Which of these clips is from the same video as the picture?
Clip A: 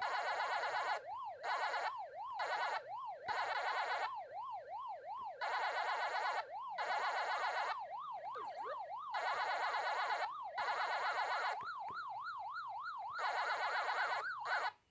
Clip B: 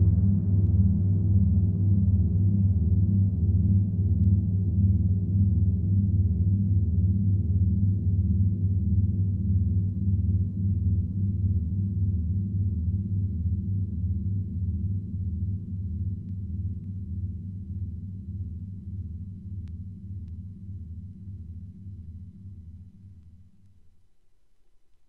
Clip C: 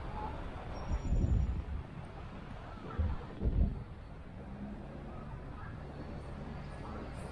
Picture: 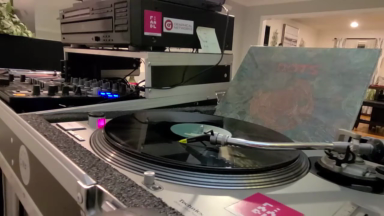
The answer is B